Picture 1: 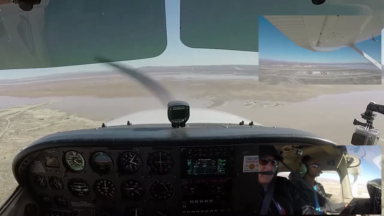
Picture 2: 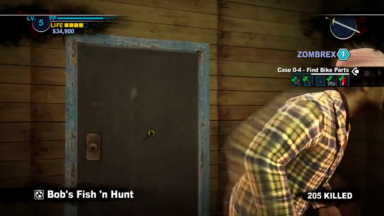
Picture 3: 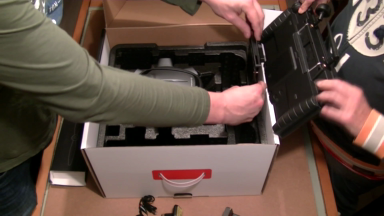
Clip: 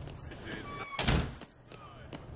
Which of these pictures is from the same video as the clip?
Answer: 2